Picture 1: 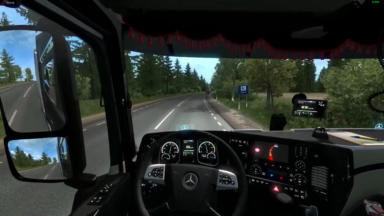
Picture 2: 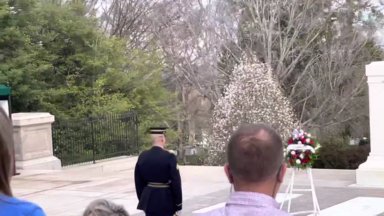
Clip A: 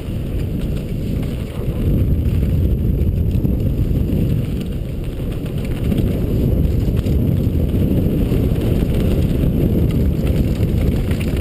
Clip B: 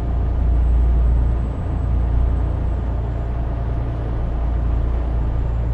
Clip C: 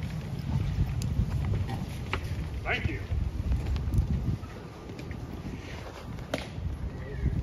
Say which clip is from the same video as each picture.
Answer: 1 B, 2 C